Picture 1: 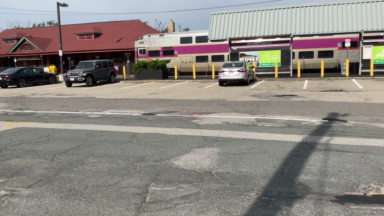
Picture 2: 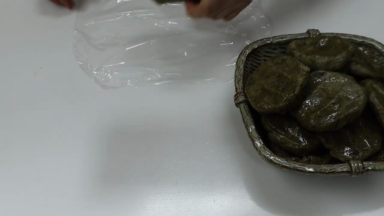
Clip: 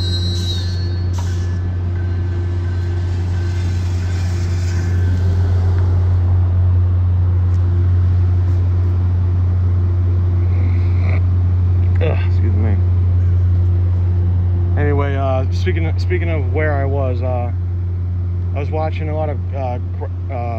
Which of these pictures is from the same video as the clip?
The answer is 1